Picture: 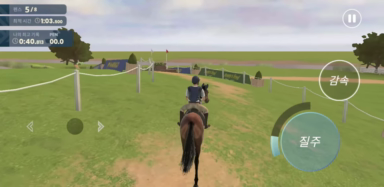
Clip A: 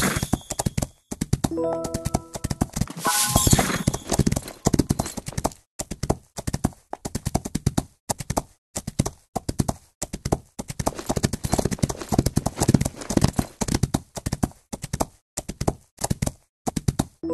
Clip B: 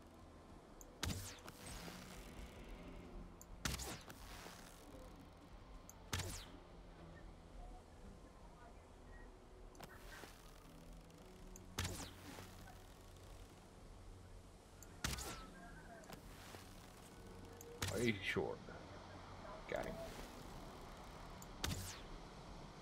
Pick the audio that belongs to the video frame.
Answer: A